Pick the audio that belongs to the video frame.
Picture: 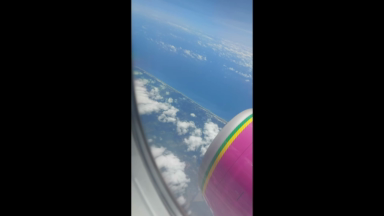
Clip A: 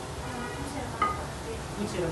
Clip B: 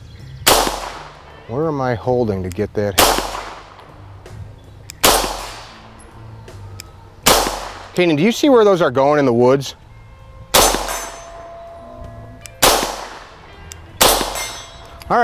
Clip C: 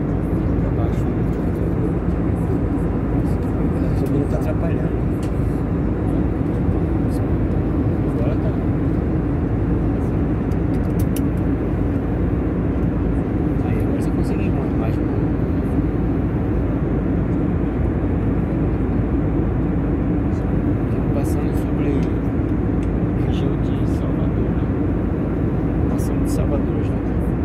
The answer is C